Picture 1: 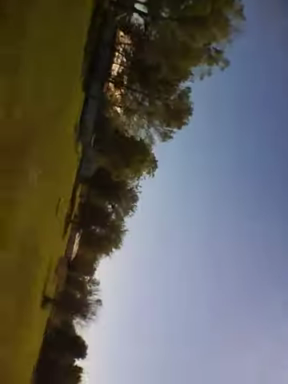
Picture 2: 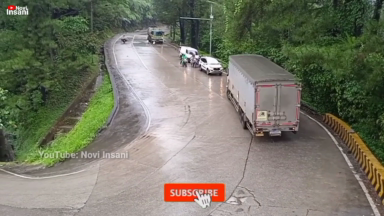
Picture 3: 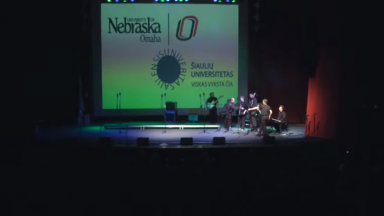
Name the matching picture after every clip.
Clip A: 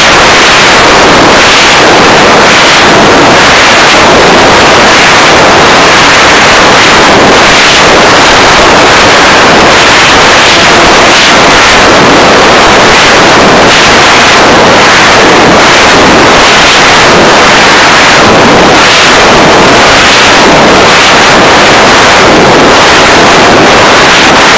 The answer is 1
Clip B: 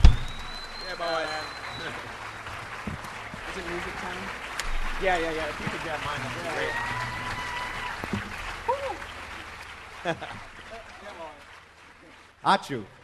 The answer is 3